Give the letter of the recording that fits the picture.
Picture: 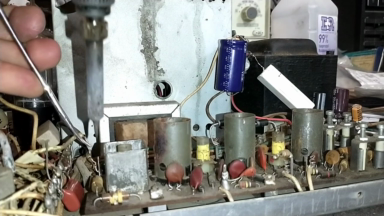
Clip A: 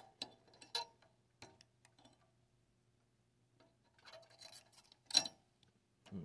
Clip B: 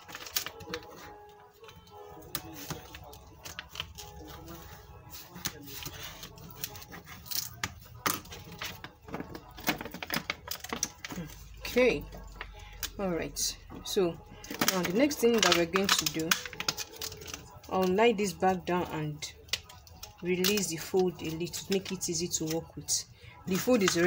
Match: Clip A